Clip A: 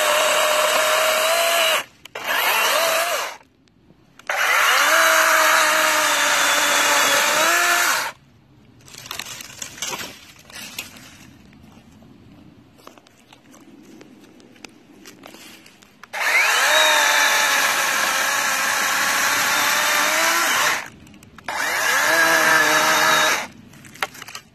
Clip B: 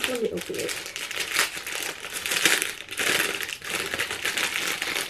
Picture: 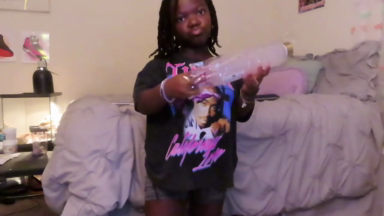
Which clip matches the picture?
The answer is B